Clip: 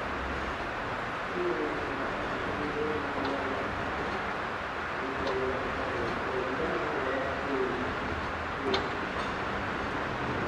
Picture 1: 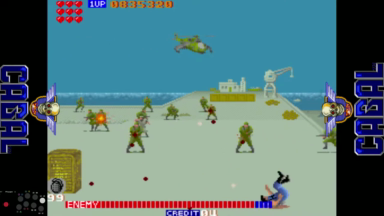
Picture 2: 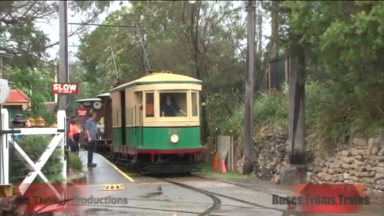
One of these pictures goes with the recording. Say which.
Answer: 2